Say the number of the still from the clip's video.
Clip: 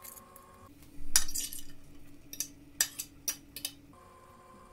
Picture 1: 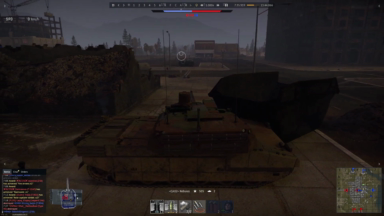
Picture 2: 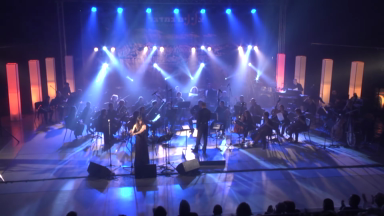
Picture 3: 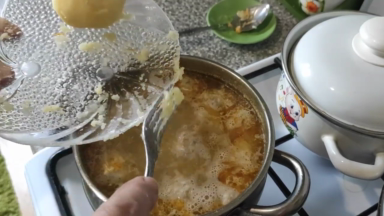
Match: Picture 3